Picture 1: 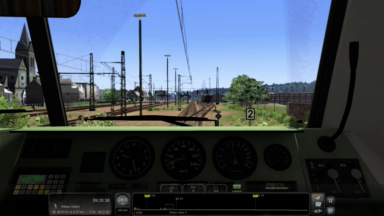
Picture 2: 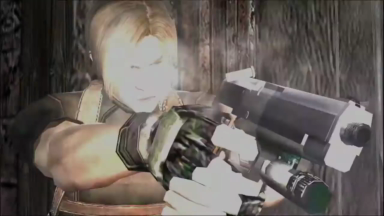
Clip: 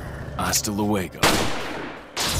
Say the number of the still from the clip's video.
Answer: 2